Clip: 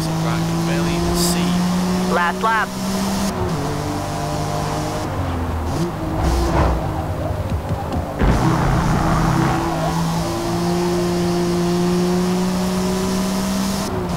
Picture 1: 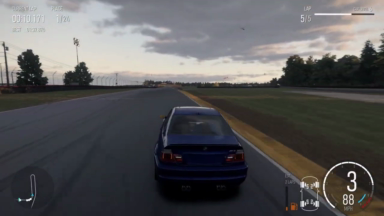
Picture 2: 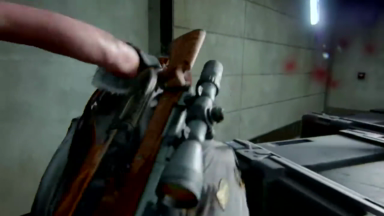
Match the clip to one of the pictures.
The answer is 1